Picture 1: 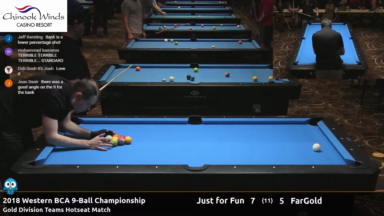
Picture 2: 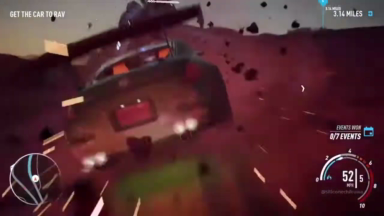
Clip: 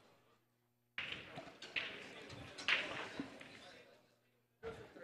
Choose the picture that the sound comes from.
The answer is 1